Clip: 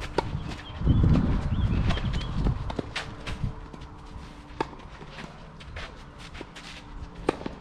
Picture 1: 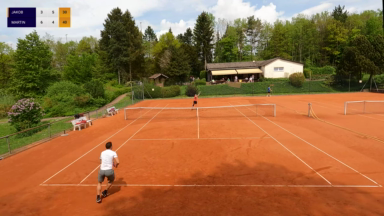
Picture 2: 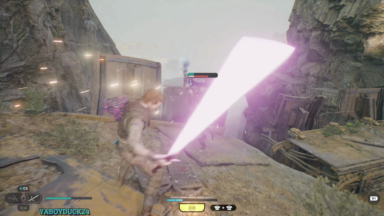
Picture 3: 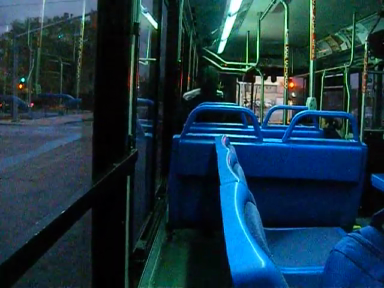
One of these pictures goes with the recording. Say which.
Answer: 1